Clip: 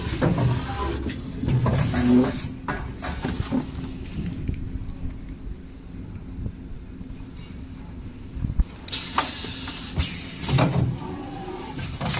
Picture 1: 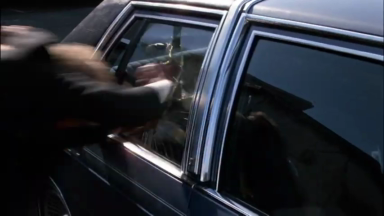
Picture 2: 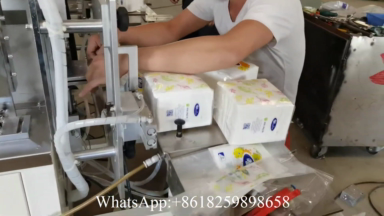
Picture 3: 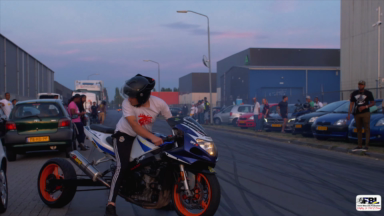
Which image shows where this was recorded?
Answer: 2